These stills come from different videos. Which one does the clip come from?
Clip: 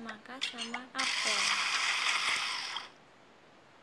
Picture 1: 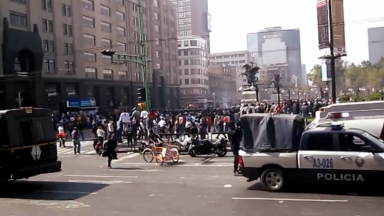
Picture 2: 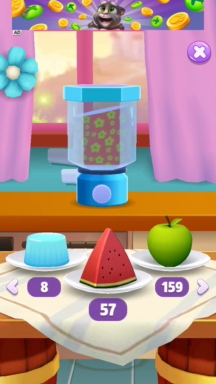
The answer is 2